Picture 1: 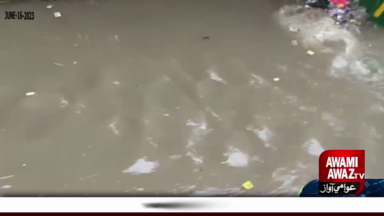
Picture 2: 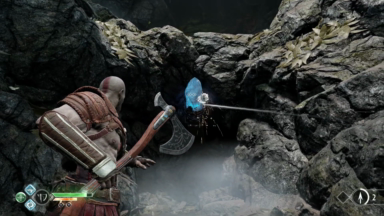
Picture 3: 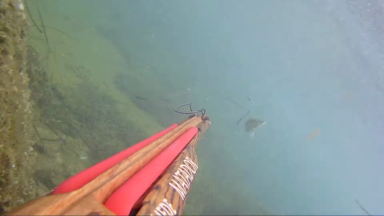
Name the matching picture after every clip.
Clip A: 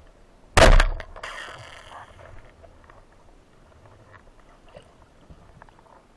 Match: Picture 3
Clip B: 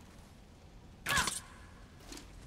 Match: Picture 2